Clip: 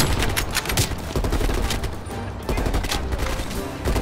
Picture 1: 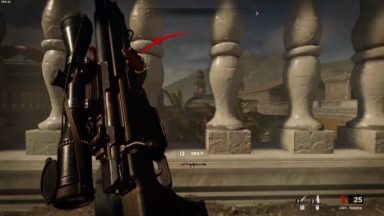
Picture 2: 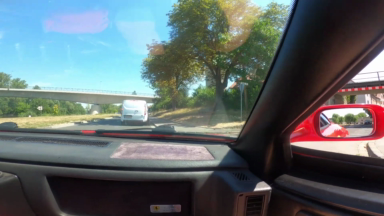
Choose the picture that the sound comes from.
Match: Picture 1